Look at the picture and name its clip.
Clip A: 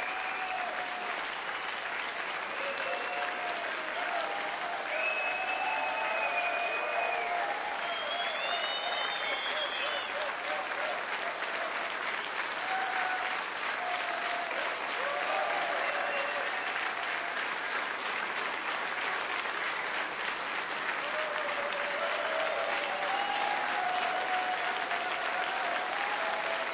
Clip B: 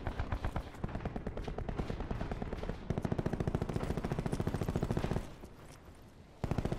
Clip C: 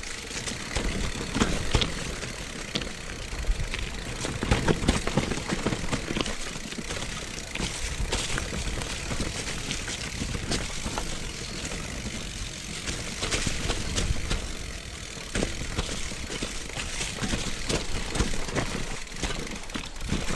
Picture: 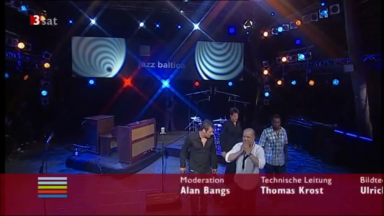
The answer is A